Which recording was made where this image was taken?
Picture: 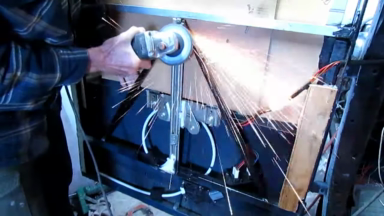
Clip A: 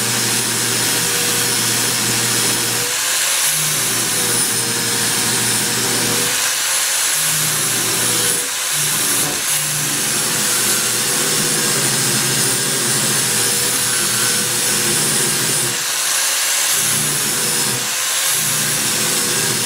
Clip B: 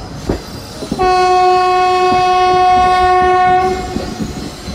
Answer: A